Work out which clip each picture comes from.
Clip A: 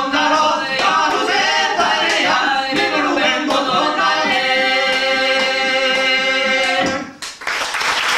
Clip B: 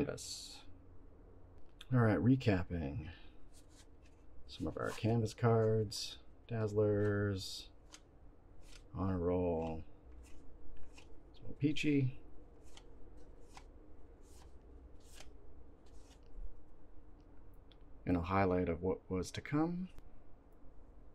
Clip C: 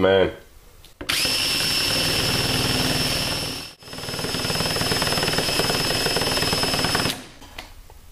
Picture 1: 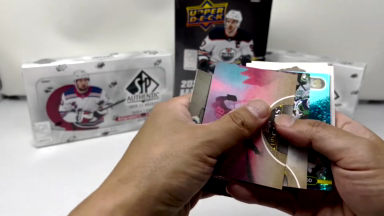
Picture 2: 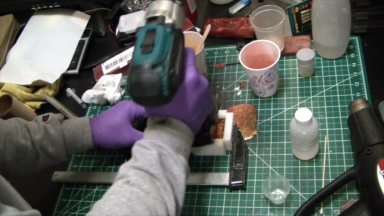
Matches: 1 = B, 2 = C